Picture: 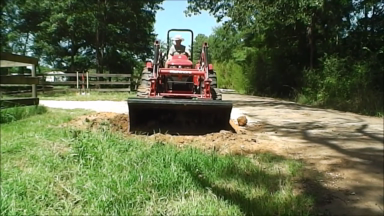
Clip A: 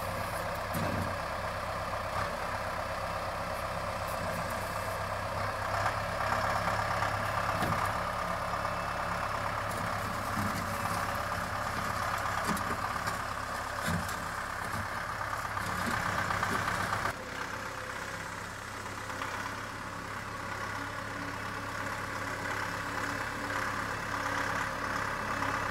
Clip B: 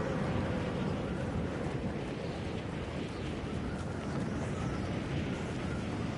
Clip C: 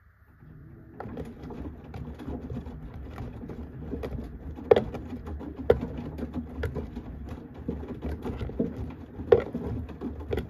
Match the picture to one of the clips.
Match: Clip A